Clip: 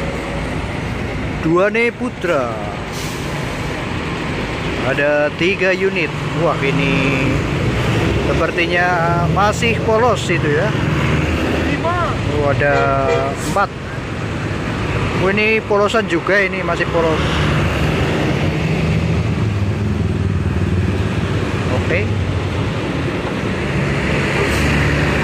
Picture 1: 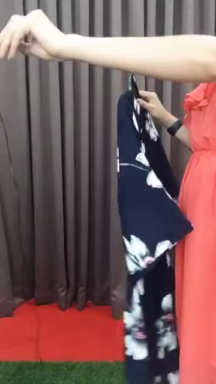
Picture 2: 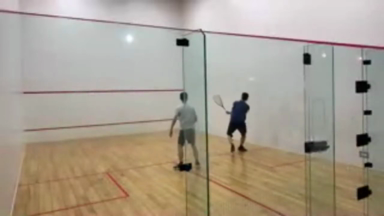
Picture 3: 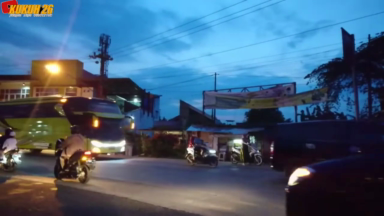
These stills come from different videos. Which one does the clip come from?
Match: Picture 3